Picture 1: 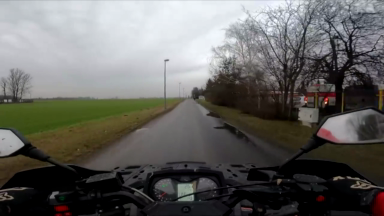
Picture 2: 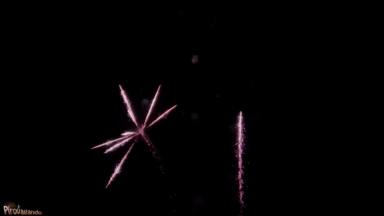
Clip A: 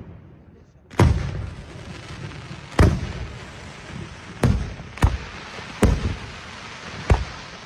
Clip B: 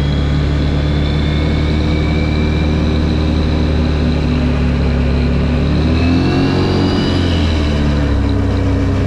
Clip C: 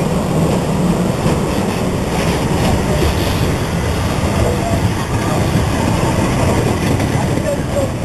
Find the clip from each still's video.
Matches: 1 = B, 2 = A